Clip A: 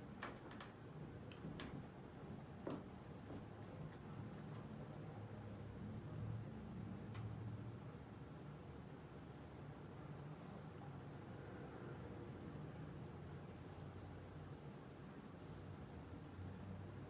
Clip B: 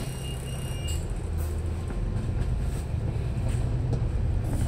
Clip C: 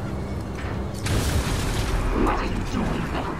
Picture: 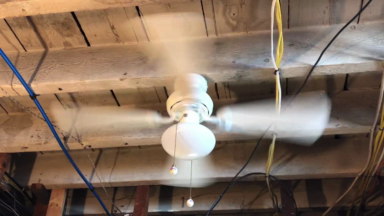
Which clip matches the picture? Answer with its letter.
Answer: A